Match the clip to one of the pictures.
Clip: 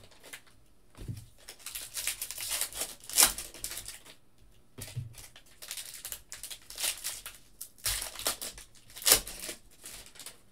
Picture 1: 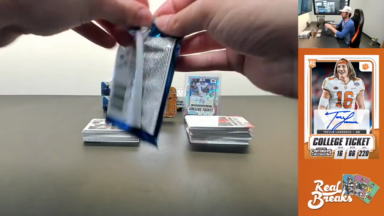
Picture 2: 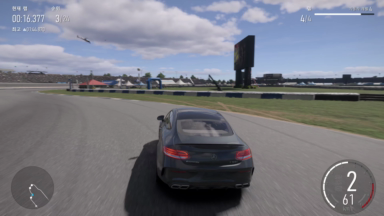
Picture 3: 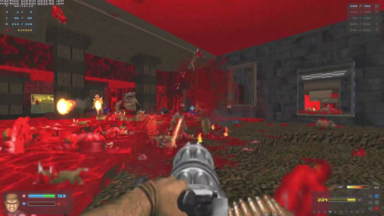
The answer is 1